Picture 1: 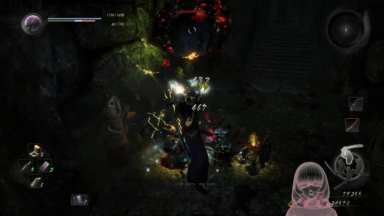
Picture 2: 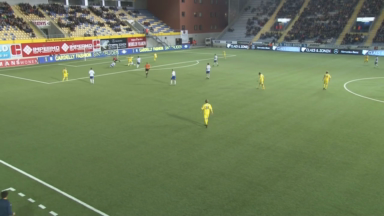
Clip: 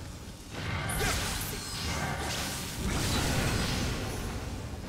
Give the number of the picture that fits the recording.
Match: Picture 1